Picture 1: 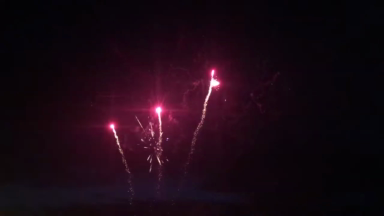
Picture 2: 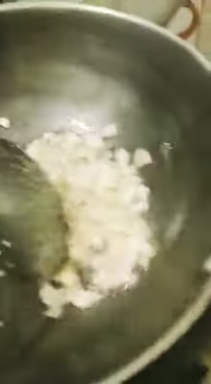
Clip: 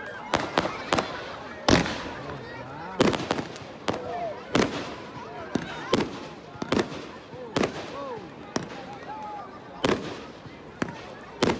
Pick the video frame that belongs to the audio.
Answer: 1